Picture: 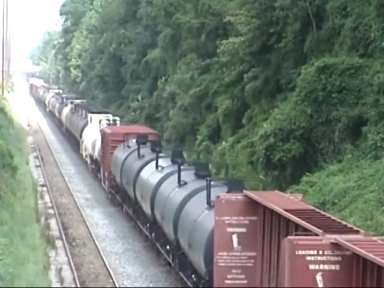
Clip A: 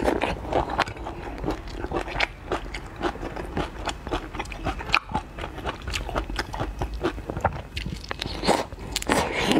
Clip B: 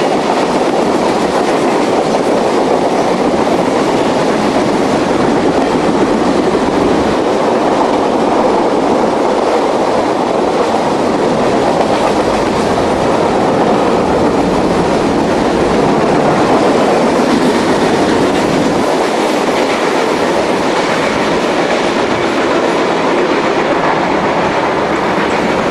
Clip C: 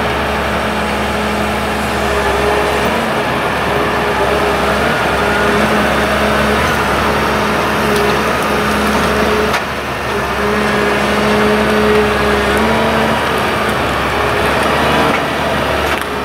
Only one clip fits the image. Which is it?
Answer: B